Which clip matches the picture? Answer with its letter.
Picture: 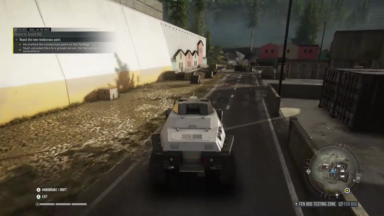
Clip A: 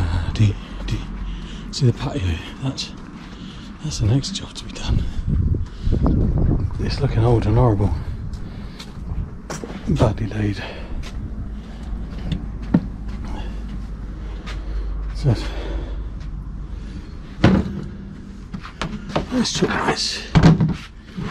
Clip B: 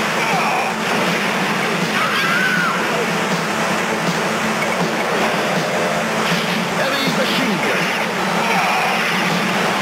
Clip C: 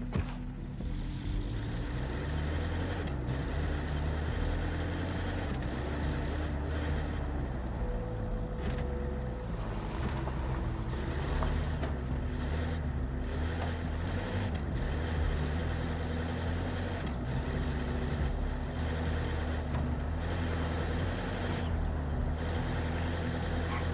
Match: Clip C